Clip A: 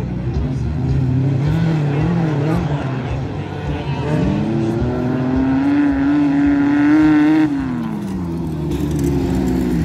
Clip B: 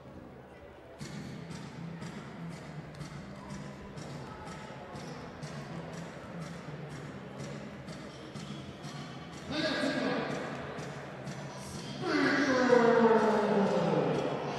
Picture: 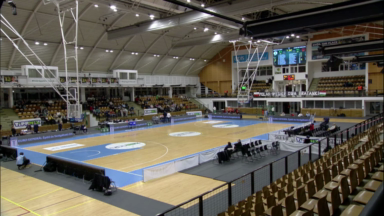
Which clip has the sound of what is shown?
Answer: B